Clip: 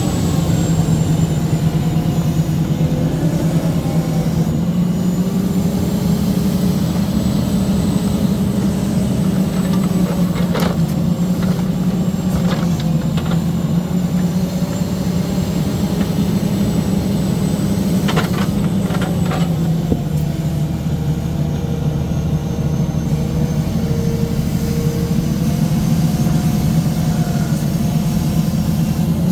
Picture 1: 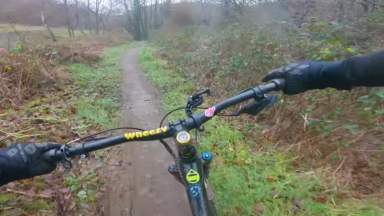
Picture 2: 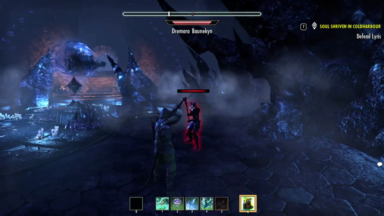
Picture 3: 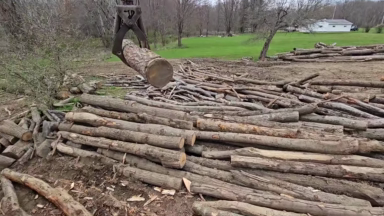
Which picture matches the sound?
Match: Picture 3